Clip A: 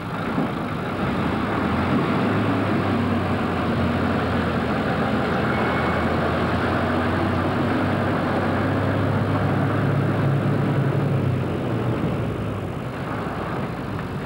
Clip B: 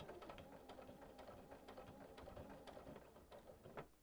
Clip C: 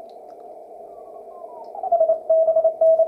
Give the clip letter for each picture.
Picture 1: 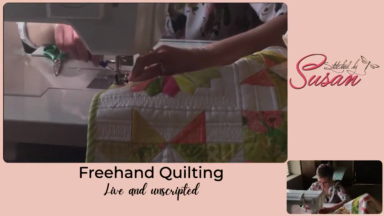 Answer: B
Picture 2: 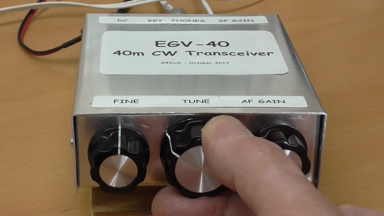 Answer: C